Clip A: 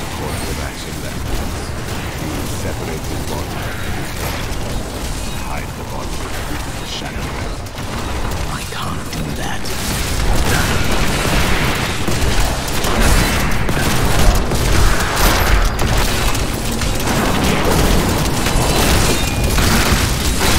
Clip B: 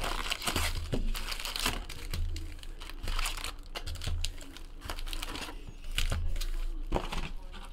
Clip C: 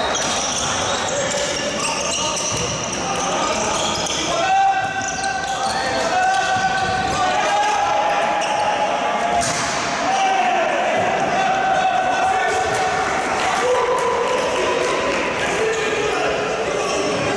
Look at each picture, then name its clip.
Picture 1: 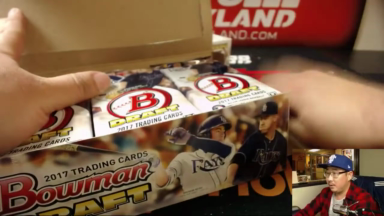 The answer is B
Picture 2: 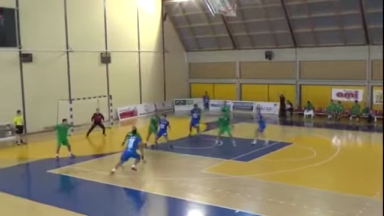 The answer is C